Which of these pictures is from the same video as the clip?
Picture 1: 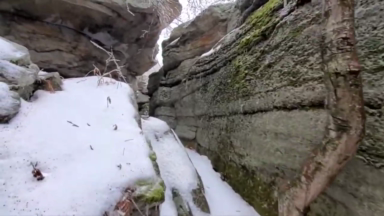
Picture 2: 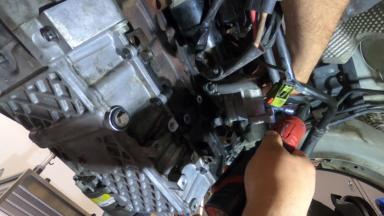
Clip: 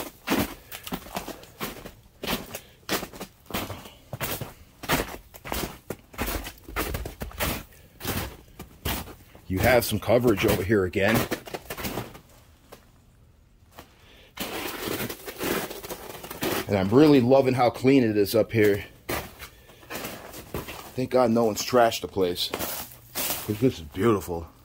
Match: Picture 1